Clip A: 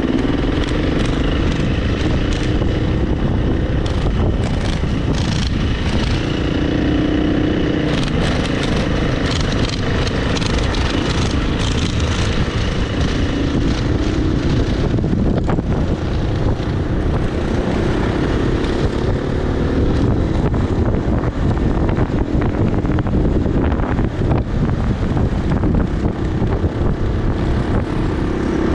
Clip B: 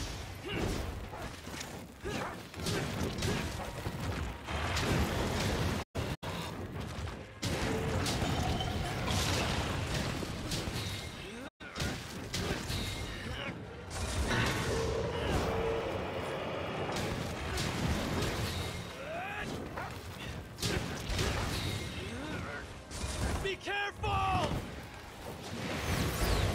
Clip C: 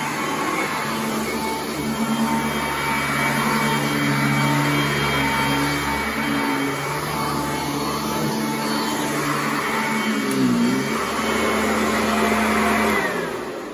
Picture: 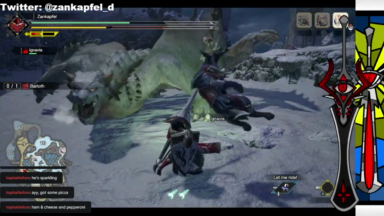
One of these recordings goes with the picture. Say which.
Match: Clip B